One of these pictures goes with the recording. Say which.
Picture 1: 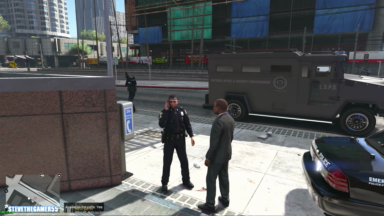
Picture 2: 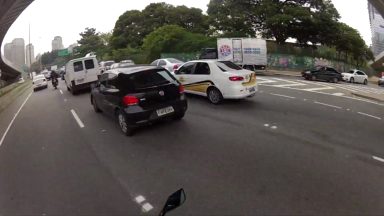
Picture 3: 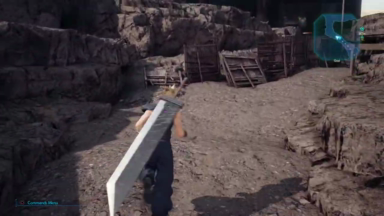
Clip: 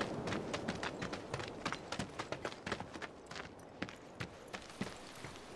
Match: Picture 3